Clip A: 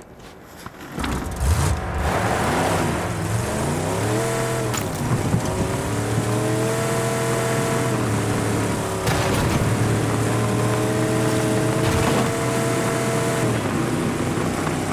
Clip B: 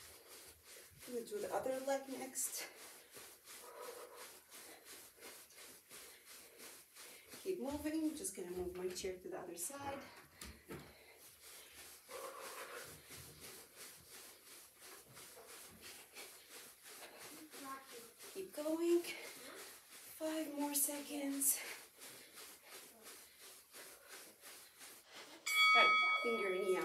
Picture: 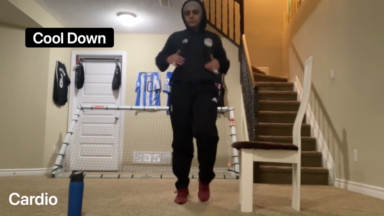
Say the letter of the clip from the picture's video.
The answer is B